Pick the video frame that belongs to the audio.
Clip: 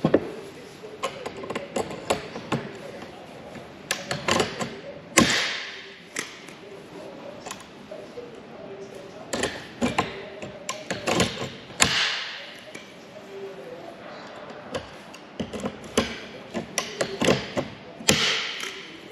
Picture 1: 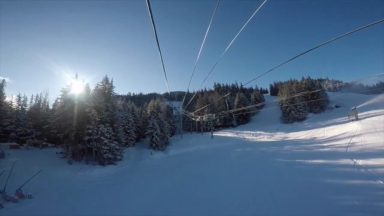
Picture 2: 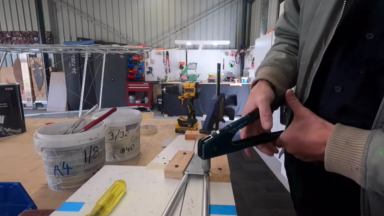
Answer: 2